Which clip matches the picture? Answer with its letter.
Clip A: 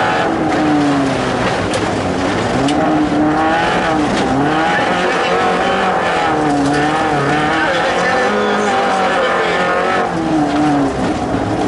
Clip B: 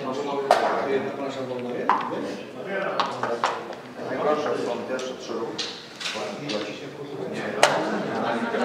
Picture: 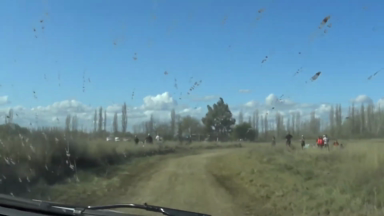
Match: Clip A